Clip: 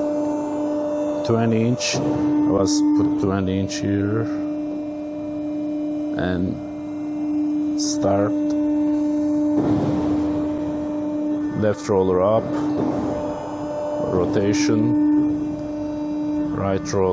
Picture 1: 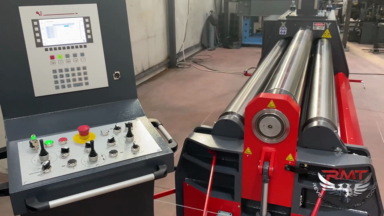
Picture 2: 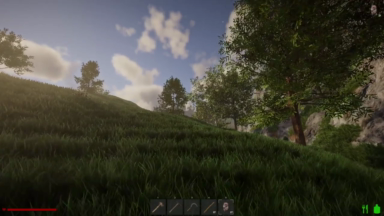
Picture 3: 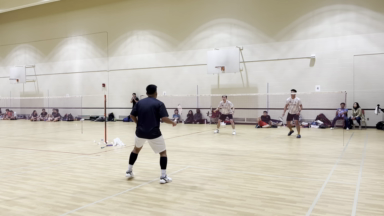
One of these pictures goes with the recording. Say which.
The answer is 1